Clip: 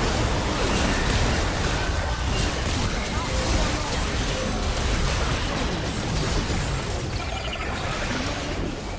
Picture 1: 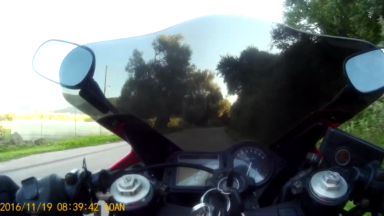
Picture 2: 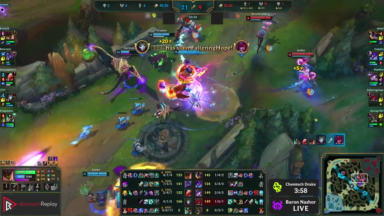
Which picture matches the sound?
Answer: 2